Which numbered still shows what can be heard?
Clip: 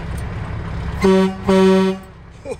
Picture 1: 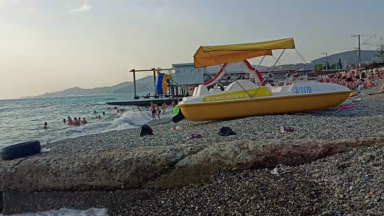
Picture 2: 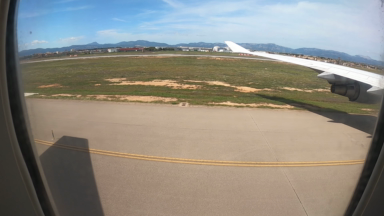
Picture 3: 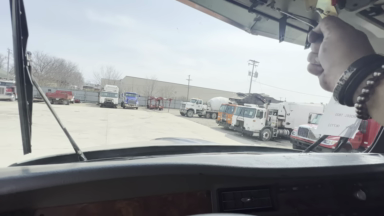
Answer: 3